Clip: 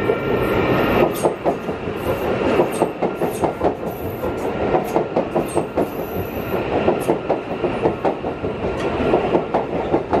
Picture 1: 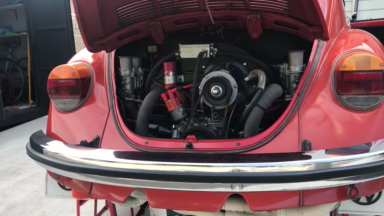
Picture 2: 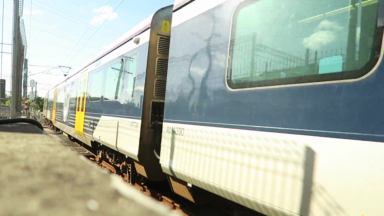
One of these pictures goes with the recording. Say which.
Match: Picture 2